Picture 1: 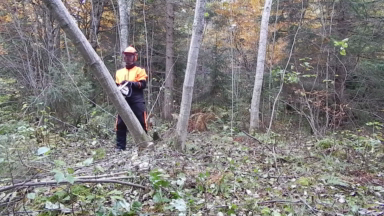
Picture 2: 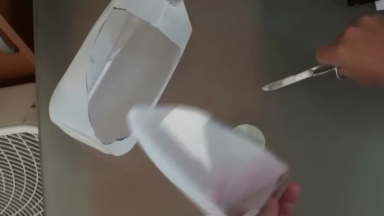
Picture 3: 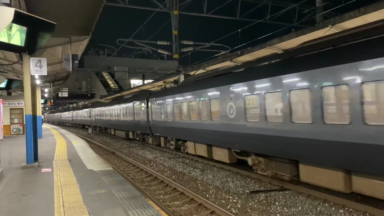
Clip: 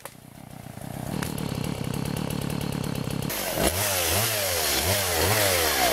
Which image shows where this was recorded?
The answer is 1